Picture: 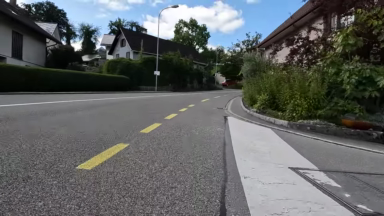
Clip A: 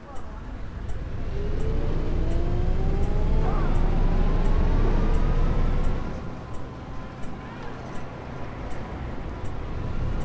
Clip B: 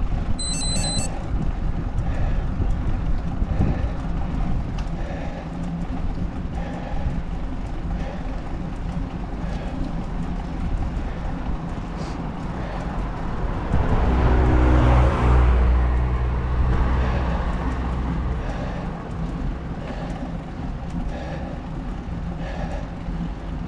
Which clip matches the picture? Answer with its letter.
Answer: B